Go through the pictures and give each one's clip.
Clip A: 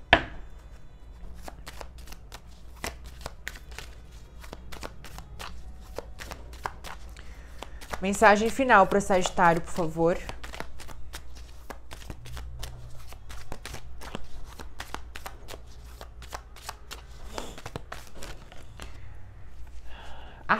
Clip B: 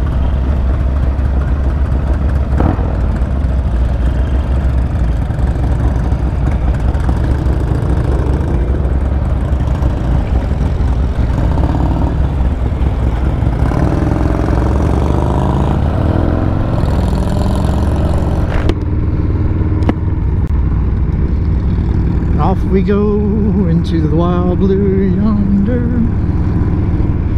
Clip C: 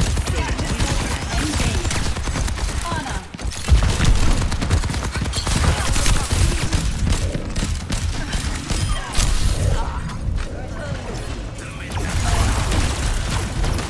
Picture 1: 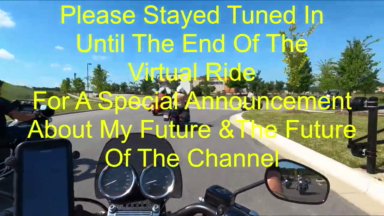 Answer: B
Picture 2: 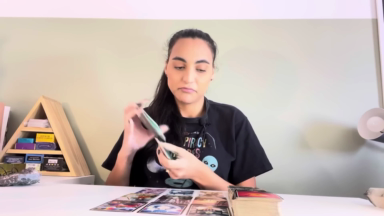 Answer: A